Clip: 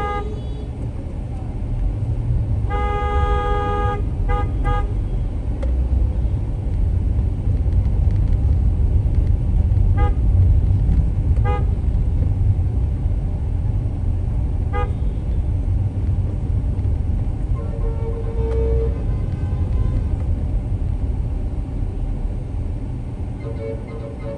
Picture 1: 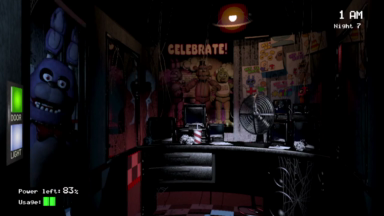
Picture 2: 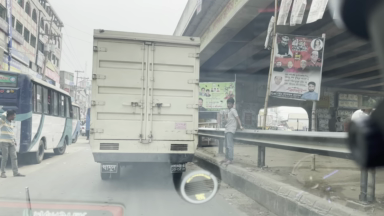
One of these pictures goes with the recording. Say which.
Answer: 2